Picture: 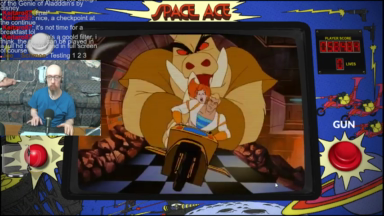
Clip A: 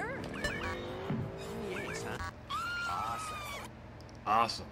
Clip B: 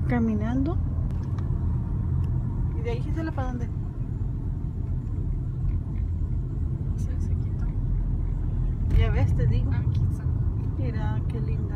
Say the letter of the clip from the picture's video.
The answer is A